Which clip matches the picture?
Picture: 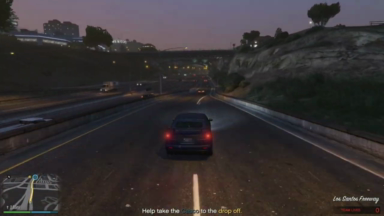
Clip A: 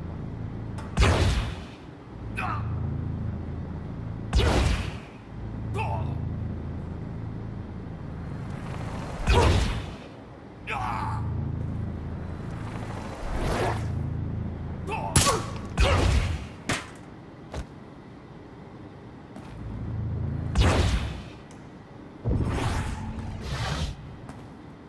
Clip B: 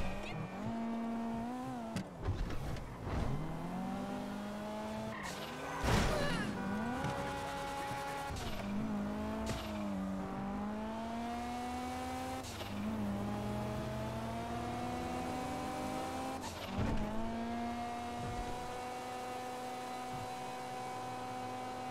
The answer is B